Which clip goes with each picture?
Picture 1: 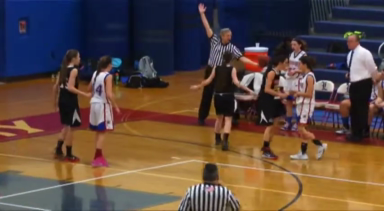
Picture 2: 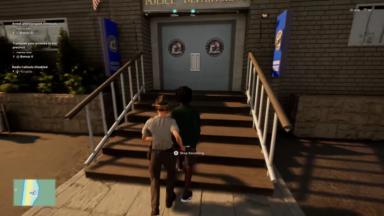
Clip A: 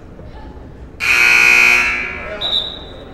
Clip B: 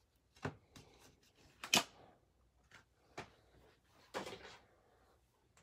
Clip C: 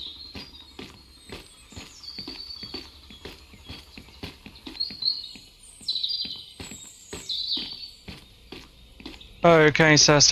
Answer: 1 A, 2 C